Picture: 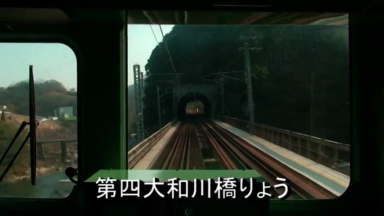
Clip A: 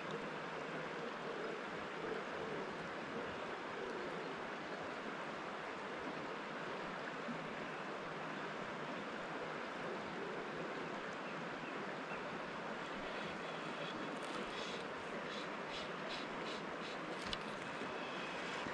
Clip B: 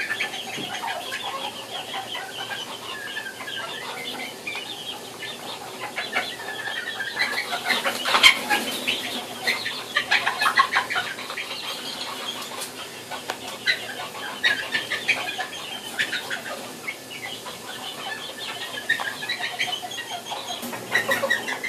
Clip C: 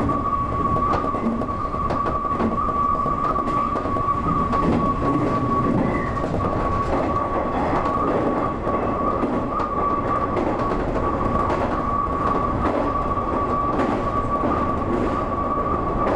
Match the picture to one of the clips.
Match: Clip C